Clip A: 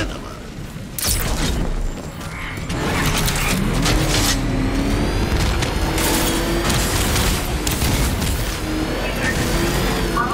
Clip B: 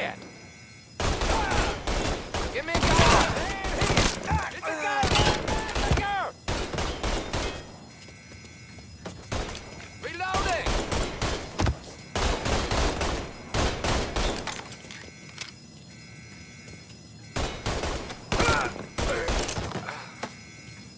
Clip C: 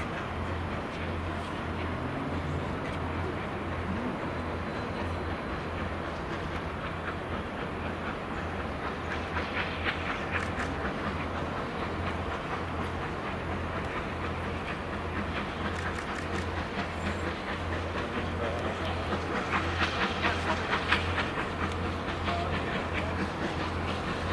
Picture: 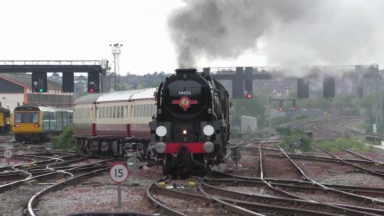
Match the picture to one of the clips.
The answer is C